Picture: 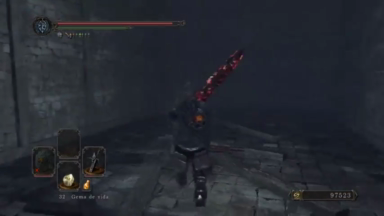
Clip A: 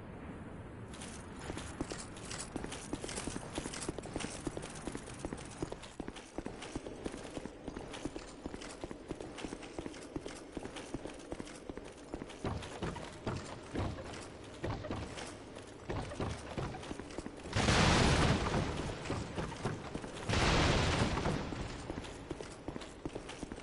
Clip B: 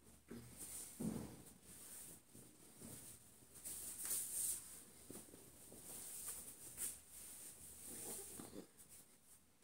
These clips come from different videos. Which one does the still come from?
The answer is A